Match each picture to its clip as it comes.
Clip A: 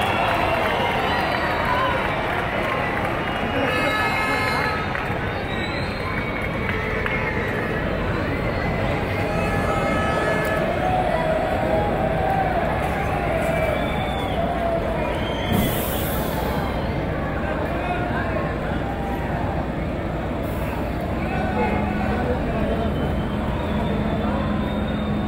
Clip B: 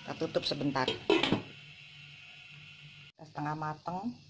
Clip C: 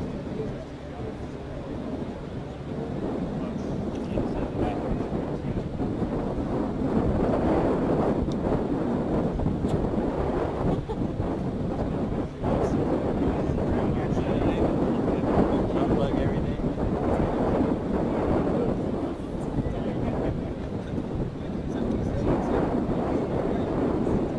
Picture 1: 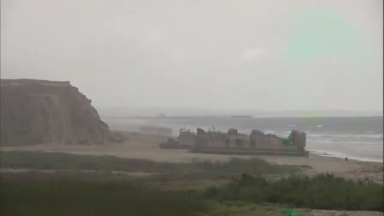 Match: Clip C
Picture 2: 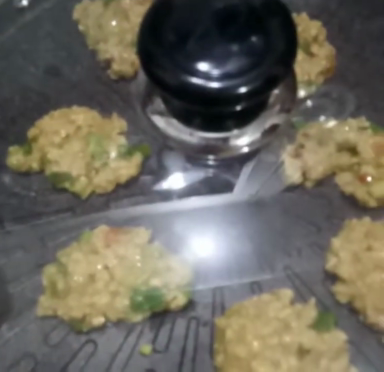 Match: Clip B